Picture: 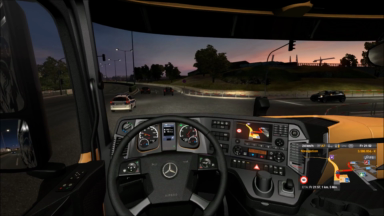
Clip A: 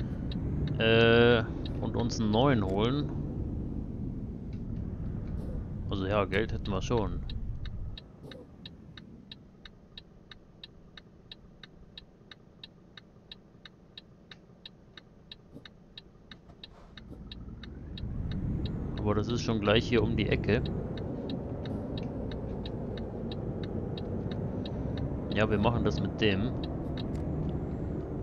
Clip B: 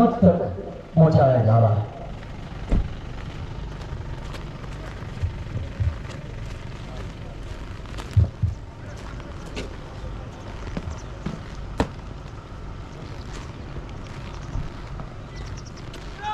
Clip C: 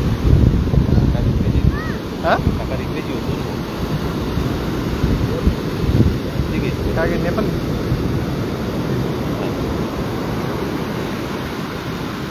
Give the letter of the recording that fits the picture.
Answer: A